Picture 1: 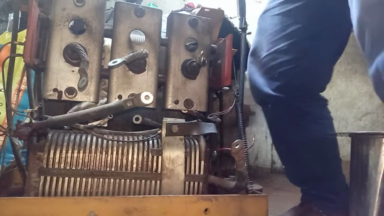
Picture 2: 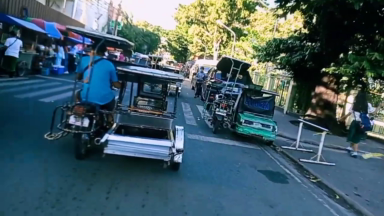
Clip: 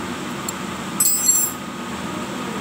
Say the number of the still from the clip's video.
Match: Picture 1